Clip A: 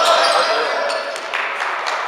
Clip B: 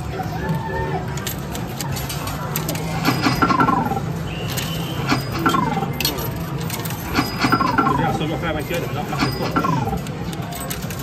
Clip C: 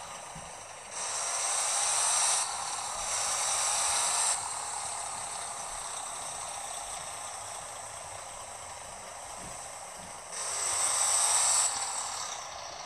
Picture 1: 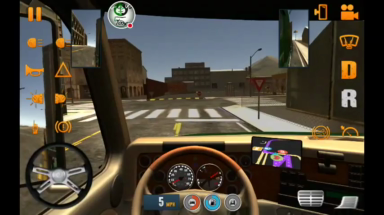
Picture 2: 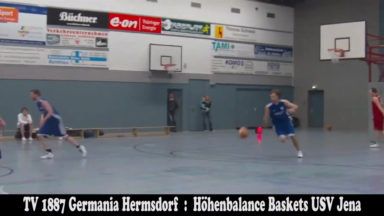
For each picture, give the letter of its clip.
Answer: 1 C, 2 A